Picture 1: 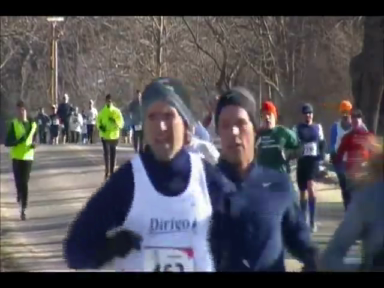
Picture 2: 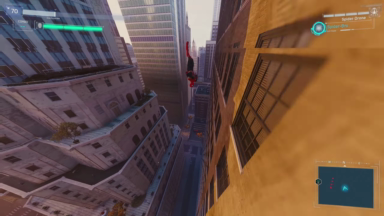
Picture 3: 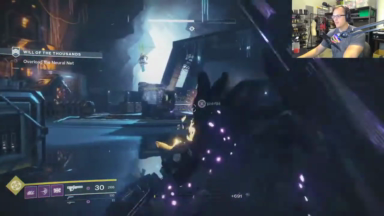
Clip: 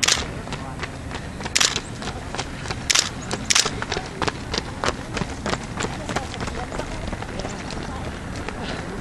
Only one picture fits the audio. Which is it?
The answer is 1